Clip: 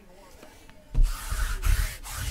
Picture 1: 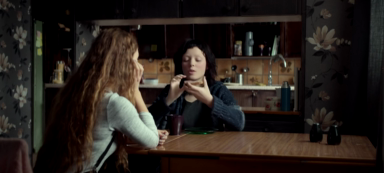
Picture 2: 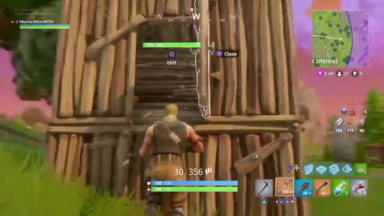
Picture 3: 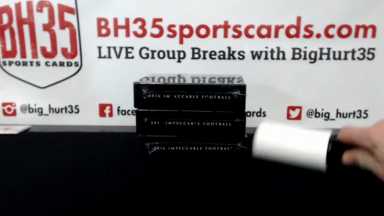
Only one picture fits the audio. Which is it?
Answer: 3